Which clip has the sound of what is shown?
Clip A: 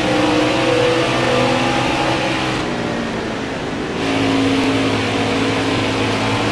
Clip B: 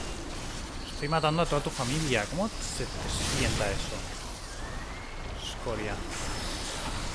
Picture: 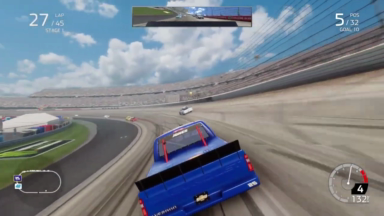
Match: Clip A